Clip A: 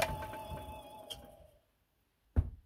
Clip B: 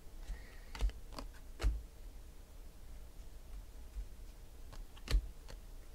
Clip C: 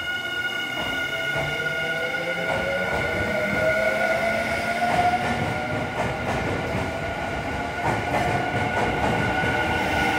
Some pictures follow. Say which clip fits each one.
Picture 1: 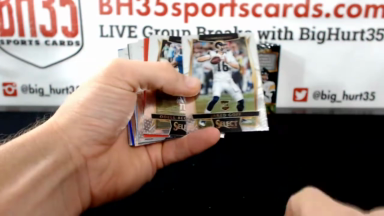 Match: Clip B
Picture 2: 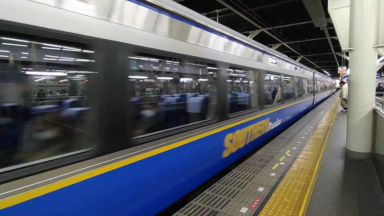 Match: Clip C